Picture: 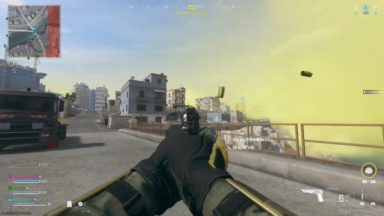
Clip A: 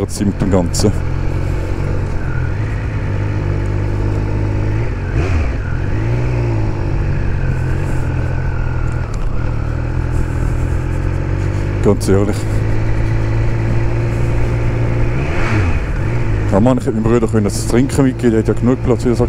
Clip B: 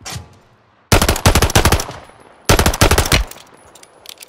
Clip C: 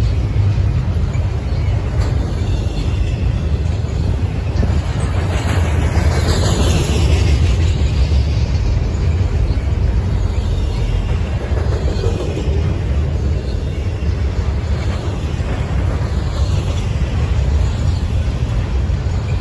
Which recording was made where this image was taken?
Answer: B